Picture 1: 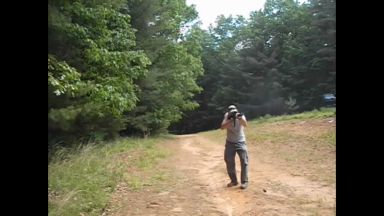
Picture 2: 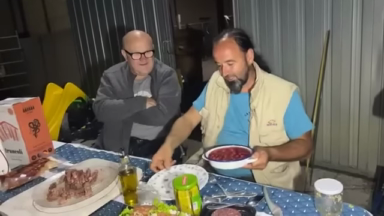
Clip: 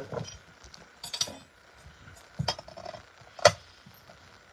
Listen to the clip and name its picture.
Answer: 2